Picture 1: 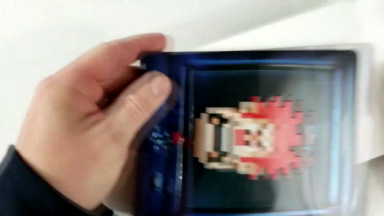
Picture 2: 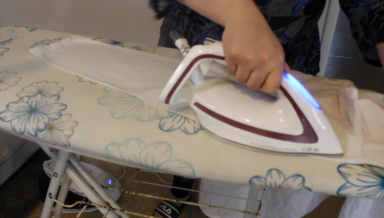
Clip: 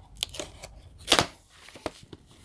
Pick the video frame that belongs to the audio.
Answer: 1